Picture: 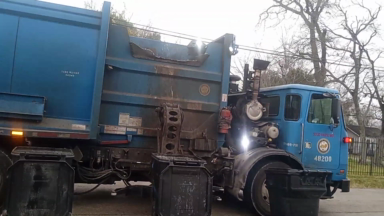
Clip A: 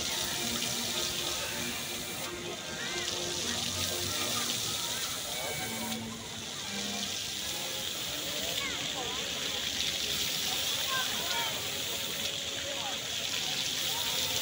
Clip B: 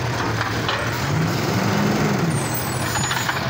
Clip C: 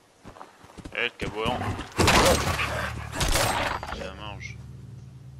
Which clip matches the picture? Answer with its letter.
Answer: B